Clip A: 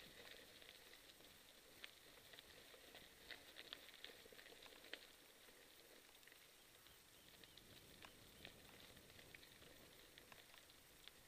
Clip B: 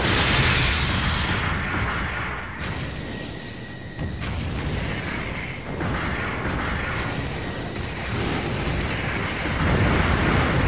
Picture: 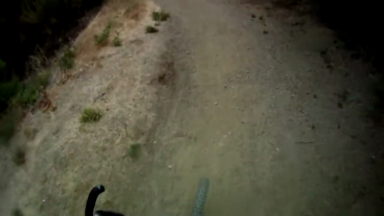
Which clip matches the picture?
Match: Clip A